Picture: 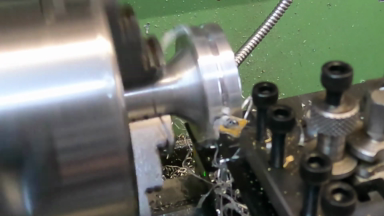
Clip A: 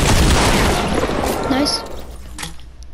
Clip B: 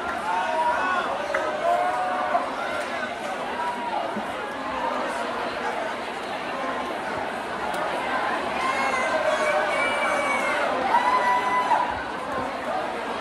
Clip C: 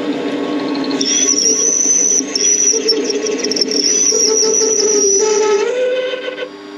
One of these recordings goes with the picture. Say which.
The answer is C